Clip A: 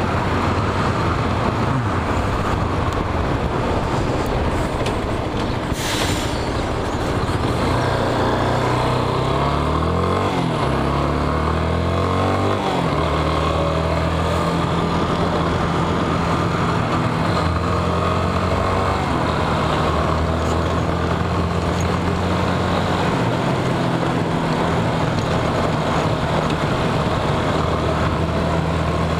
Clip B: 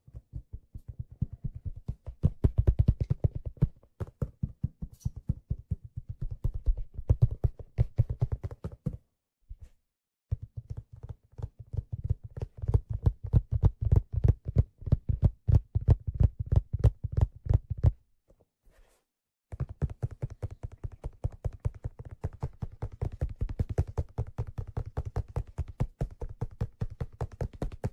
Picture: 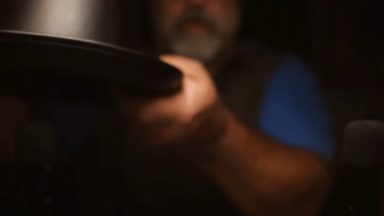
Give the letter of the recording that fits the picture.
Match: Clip B